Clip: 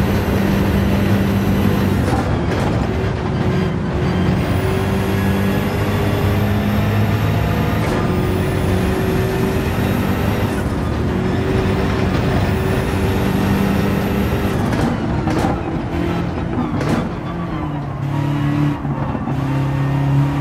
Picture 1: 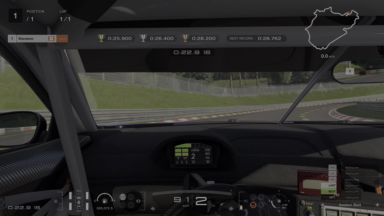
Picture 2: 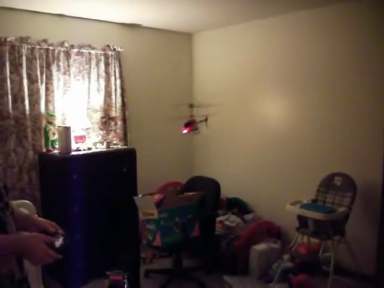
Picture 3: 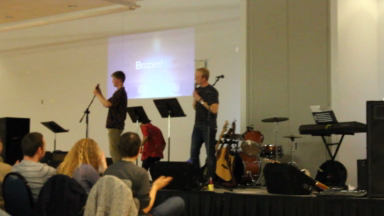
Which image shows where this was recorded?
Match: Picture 1